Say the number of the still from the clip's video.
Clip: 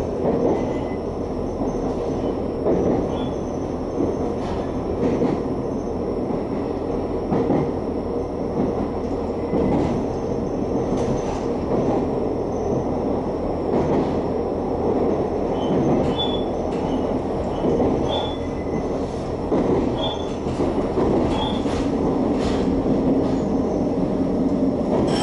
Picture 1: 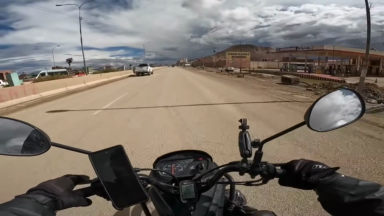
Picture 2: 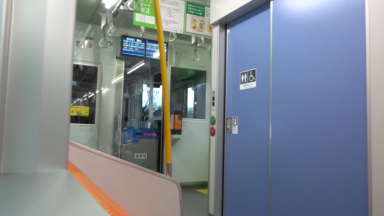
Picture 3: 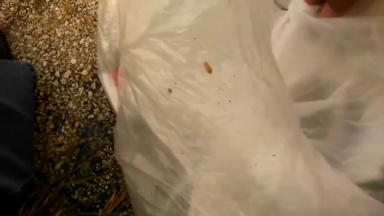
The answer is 2